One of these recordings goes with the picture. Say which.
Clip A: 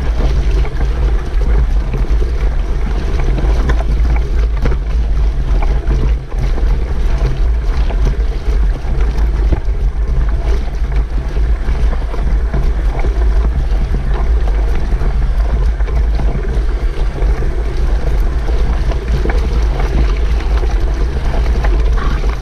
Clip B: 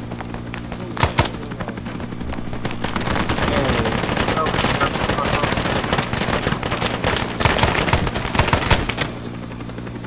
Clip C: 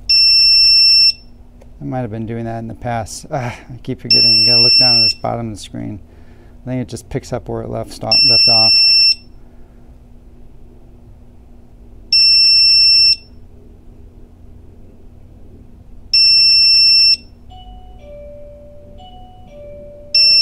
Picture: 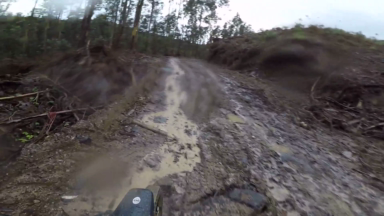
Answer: A